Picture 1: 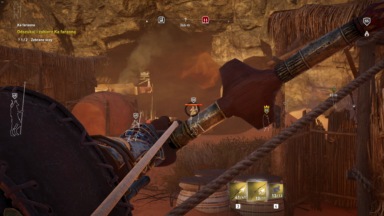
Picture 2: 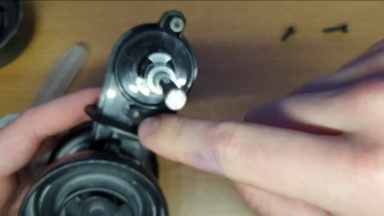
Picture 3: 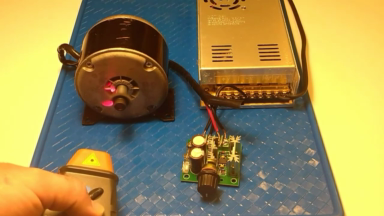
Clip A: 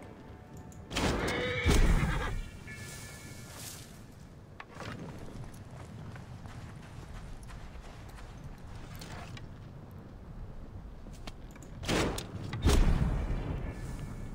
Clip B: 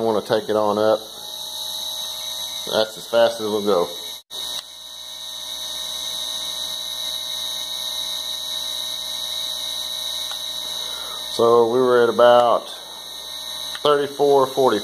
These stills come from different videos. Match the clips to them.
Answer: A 1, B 3